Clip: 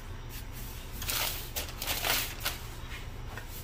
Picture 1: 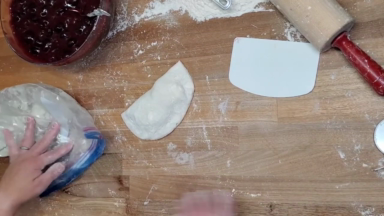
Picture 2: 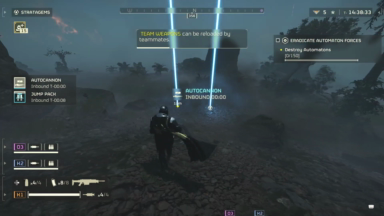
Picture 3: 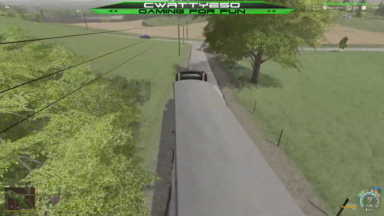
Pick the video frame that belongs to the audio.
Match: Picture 1